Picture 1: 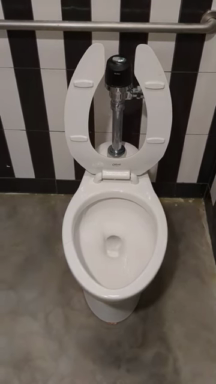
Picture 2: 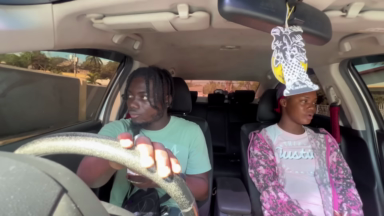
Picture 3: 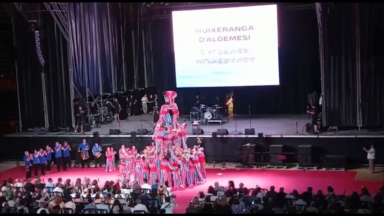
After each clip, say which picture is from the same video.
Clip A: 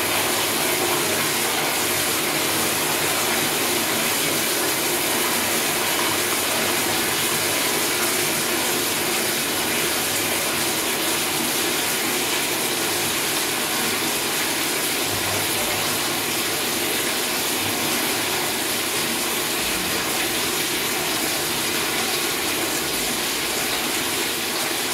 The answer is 1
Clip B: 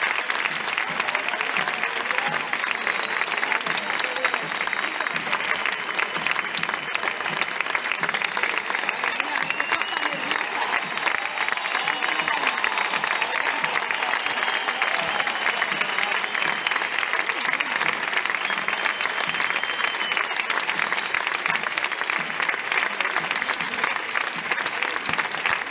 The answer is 3